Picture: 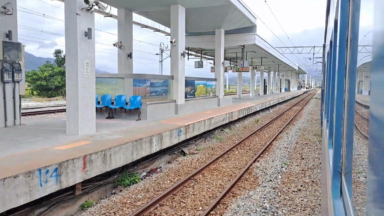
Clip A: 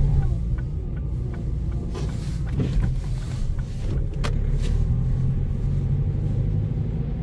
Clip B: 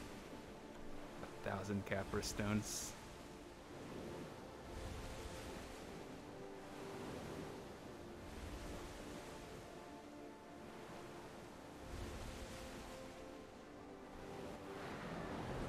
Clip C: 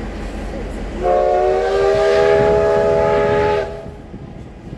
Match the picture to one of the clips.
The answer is C